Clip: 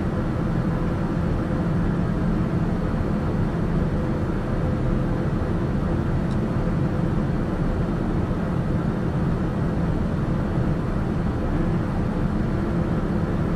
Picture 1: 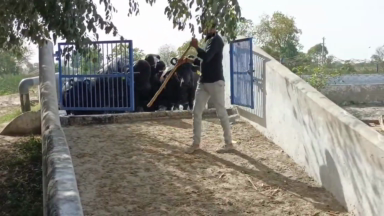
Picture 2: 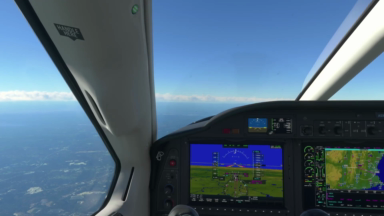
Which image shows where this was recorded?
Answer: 2